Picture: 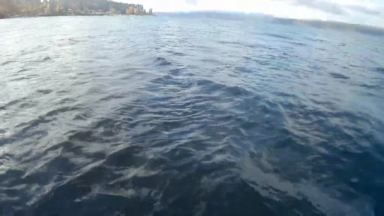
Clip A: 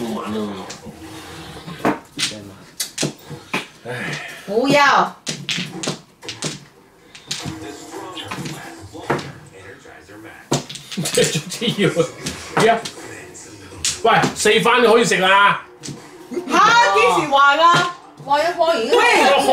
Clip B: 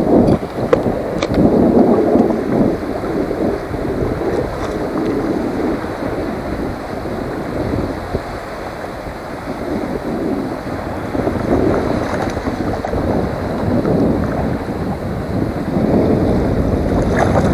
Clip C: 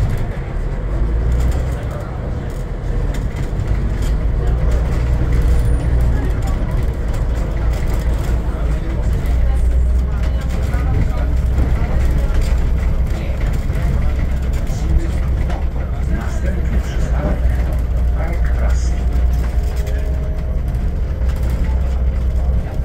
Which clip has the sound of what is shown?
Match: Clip B